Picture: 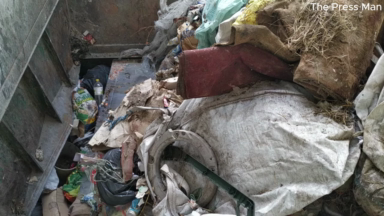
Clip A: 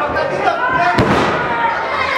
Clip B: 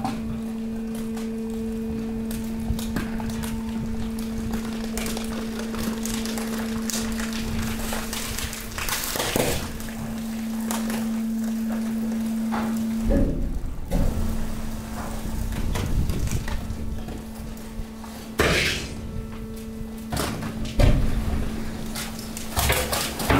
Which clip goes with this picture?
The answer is B